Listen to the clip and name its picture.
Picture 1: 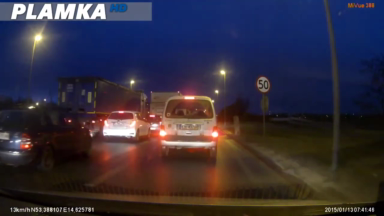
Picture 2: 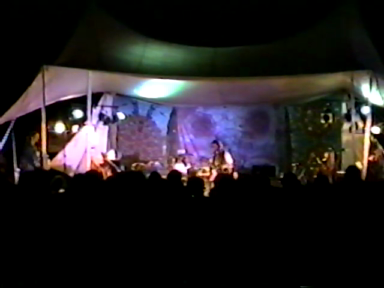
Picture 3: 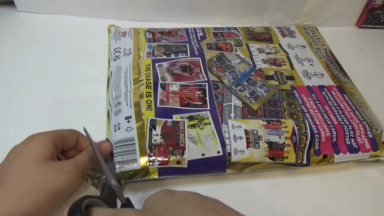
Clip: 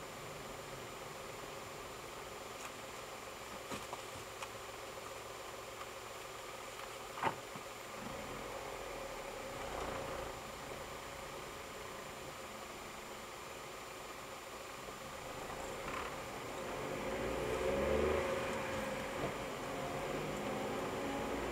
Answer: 1